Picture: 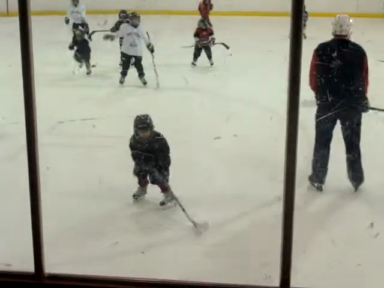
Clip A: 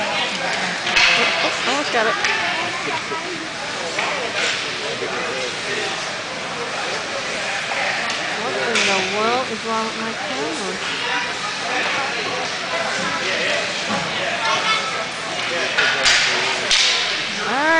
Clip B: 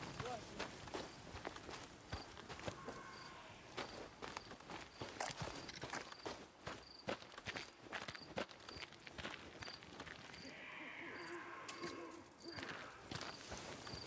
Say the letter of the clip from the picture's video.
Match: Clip A